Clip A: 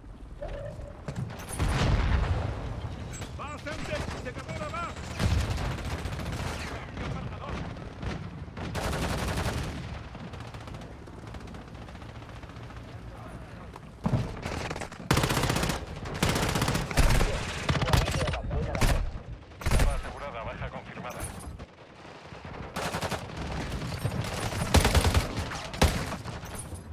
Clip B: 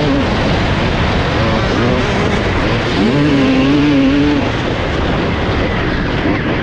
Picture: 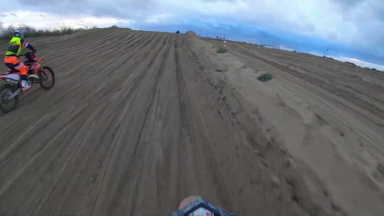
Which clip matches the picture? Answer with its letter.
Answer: B